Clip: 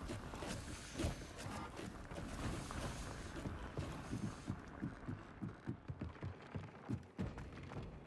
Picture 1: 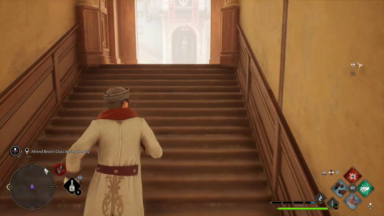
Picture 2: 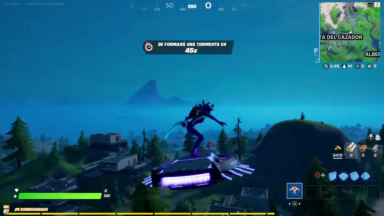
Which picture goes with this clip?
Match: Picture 1